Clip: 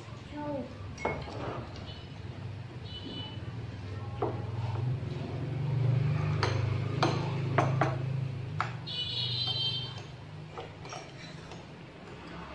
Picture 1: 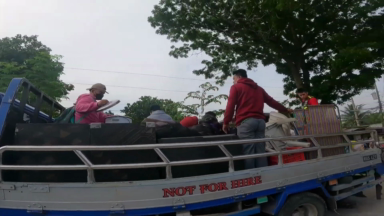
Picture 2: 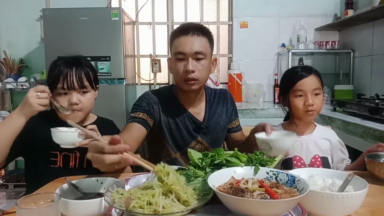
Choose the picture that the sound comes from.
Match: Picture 2